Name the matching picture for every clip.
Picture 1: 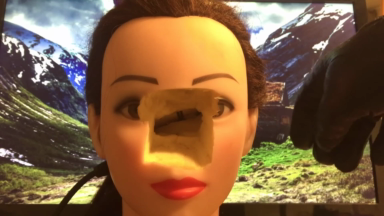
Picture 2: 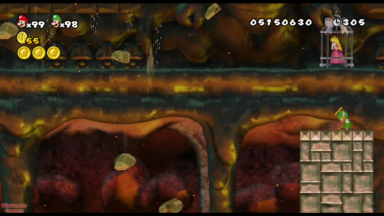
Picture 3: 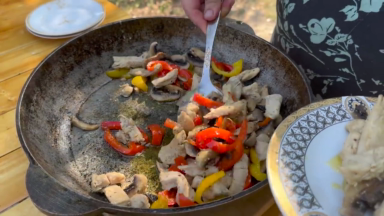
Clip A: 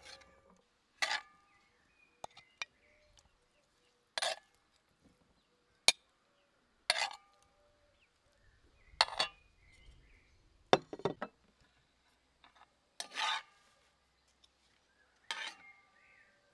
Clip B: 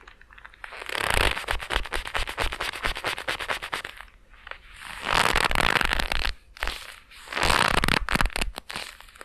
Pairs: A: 3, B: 1